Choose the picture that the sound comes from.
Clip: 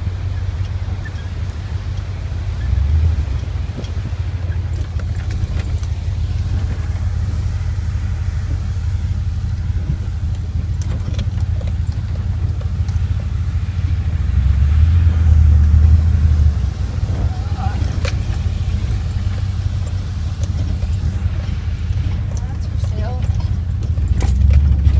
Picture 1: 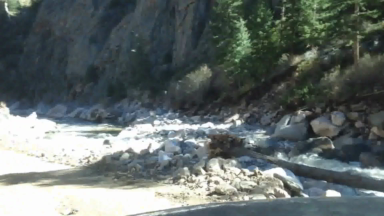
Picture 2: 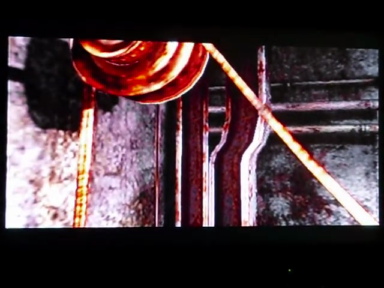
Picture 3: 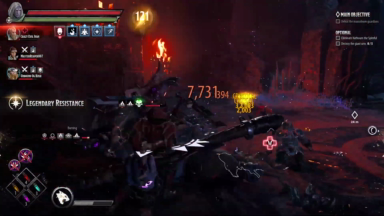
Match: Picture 1